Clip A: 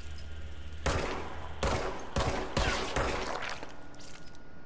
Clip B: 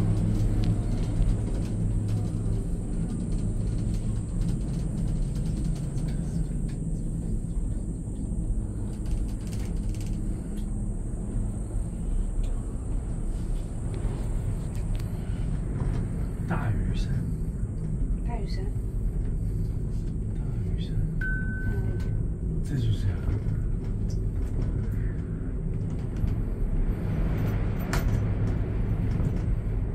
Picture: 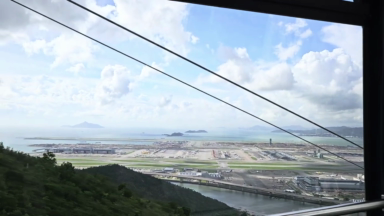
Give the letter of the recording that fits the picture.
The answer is B